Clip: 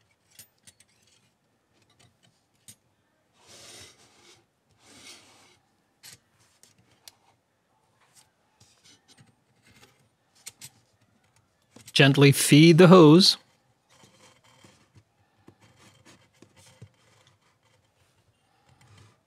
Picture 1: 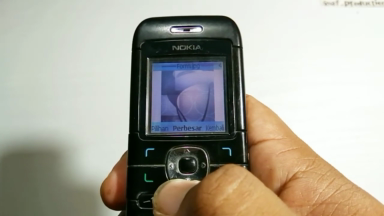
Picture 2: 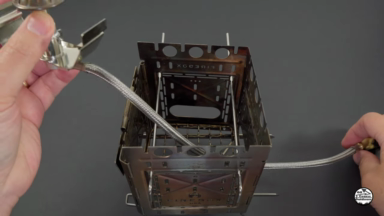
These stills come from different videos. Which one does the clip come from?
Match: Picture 2